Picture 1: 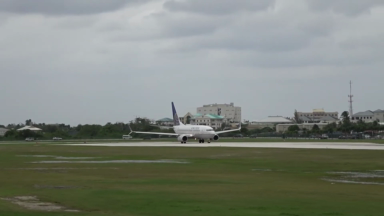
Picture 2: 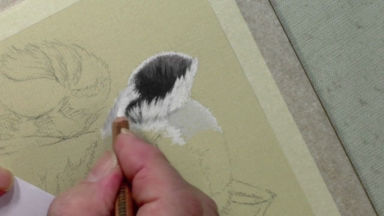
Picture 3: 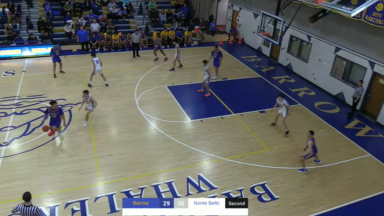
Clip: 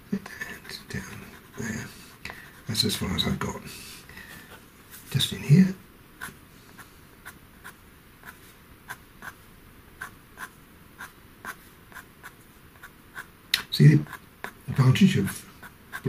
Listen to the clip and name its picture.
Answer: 2